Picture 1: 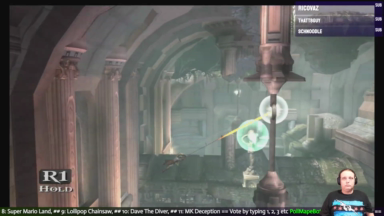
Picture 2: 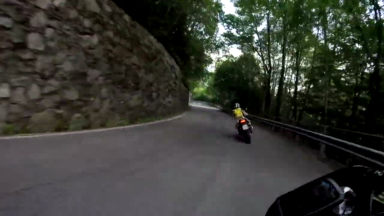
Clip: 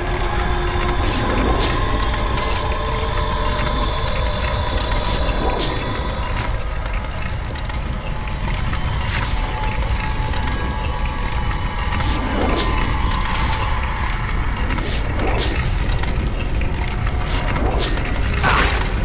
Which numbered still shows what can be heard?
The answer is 1